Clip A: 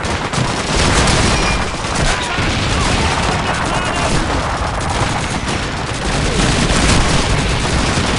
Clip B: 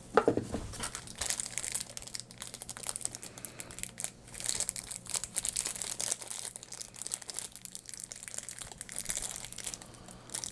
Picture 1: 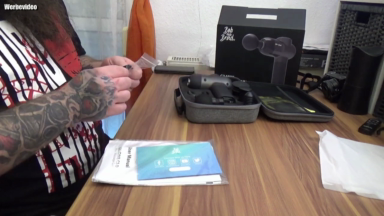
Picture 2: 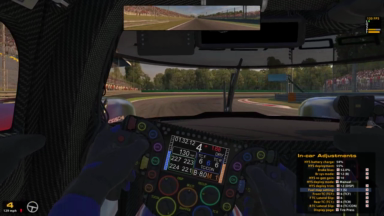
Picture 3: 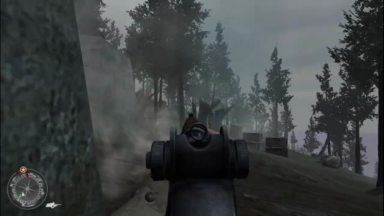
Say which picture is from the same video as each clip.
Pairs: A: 3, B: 1